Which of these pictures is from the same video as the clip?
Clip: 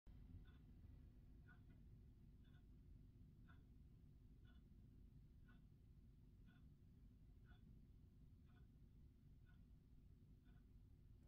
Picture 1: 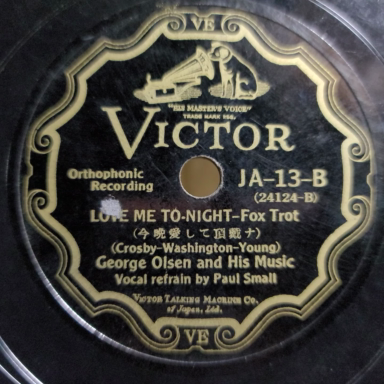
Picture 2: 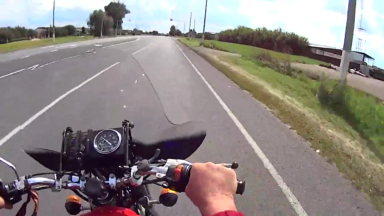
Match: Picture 1